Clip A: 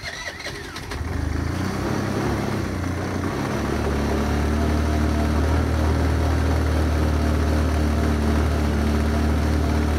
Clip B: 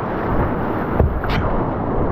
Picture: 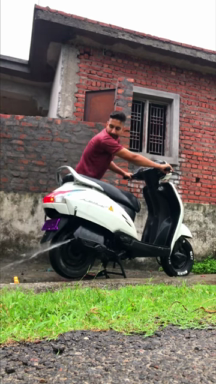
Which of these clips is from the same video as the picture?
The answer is A